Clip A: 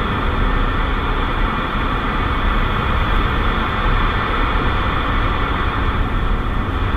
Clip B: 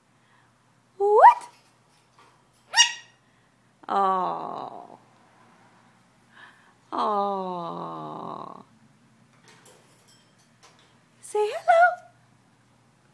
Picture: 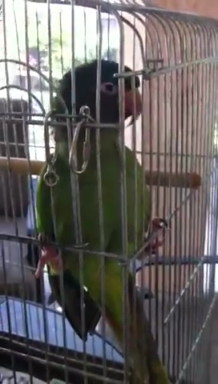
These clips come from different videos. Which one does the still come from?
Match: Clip B